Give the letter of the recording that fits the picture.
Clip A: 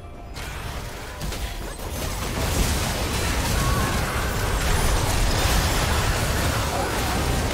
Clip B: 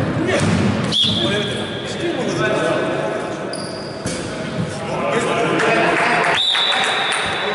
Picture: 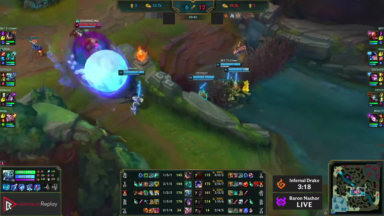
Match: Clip A